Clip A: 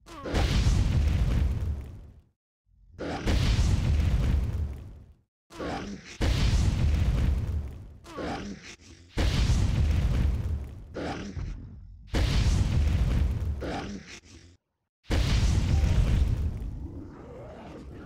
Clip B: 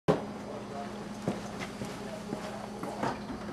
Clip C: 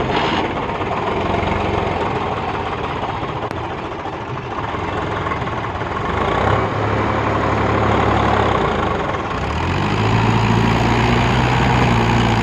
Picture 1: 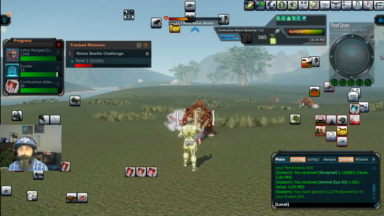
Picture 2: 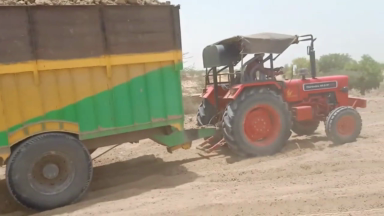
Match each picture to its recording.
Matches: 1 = A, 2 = C